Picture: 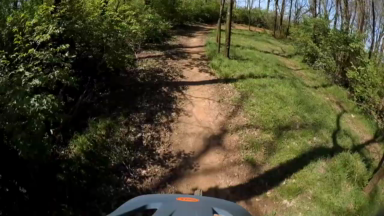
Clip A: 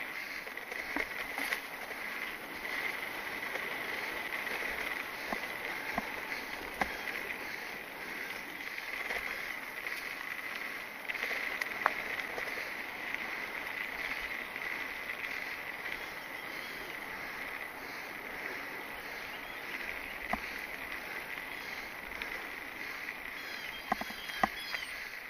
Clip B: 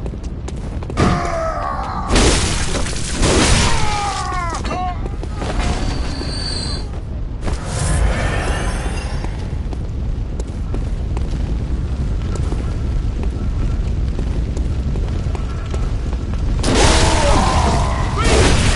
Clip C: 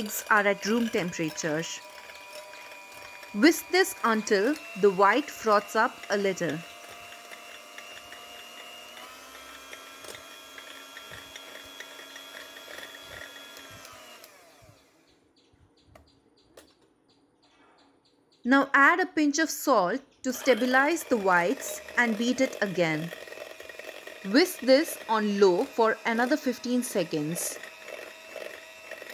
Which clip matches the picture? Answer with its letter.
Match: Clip A